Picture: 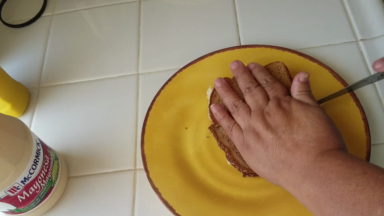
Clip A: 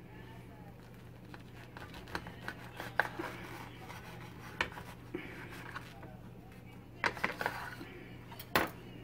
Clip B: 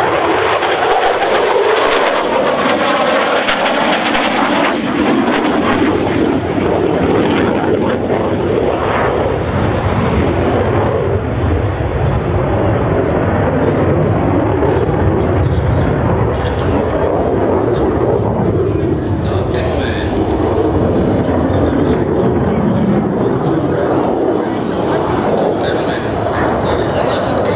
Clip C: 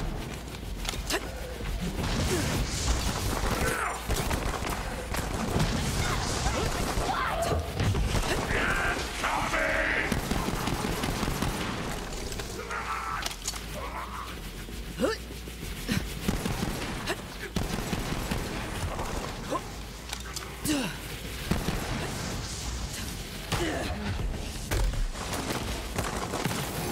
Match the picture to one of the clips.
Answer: A